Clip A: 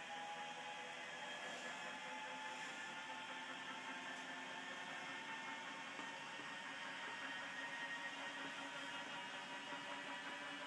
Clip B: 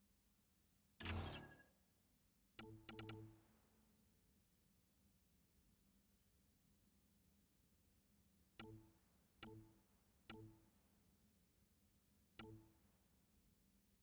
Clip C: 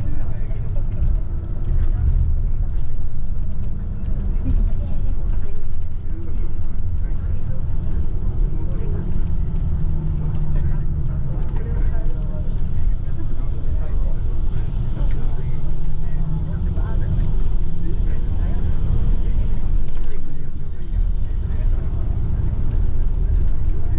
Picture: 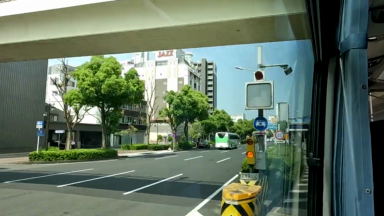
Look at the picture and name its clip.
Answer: C